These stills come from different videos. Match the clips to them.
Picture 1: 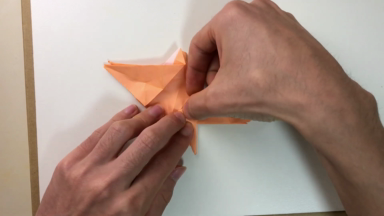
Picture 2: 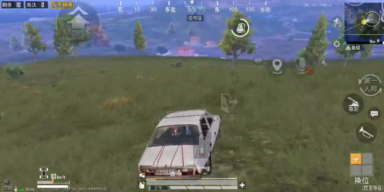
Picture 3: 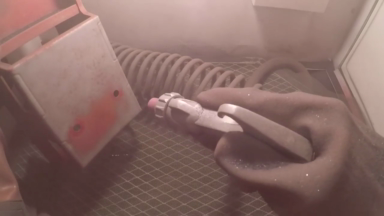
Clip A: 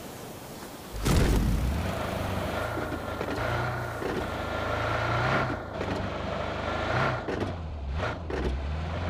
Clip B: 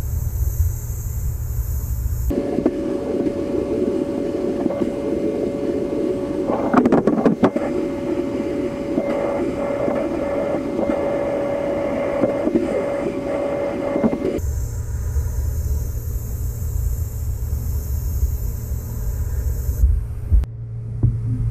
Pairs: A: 2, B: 3